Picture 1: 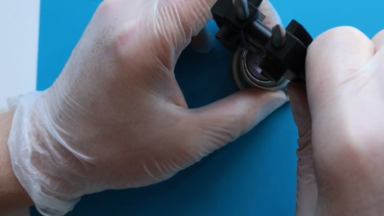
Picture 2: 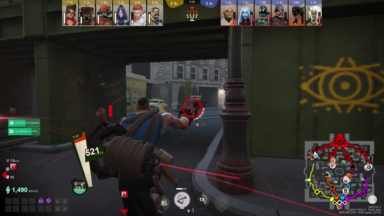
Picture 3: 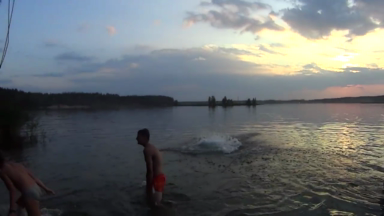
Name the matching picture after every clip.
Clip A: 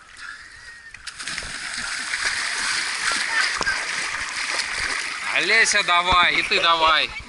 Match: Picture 3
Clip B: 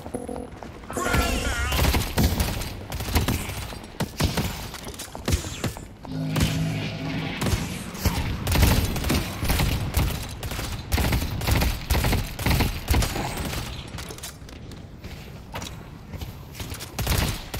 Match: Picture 2